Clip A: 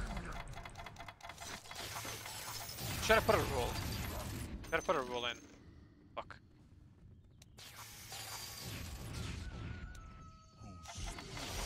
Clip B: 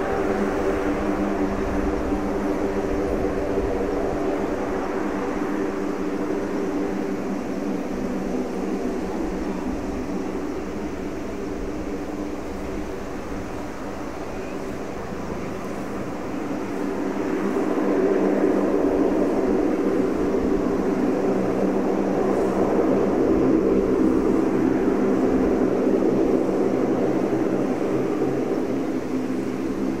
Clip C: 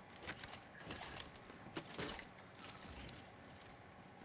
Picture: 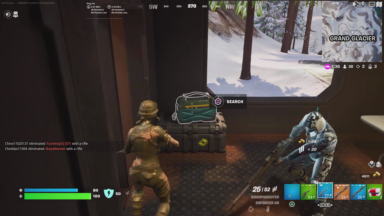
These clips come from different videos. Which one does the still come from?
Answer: C